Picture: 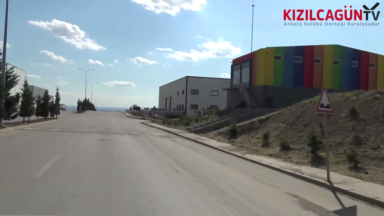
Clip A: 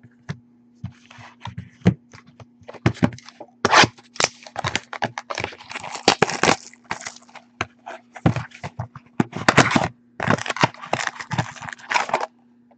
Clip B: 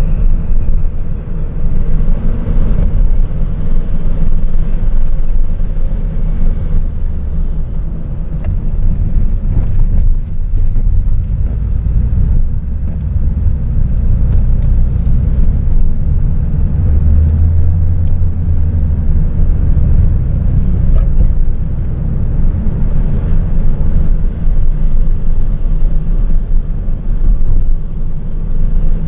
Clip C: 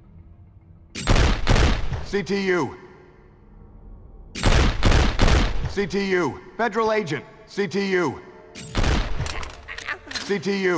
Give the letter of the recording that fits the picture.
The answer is B